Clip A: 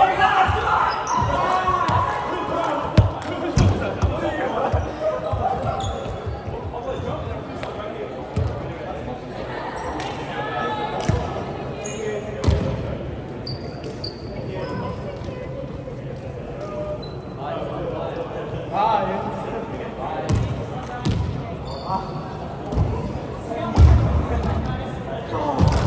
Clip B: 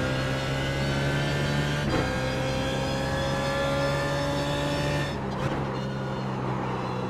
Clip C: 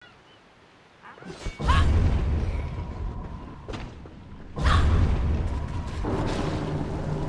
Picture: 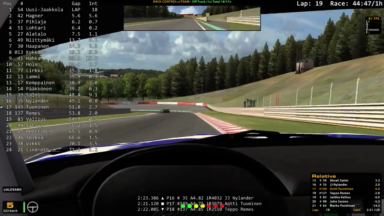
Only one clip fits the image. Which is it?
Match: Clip B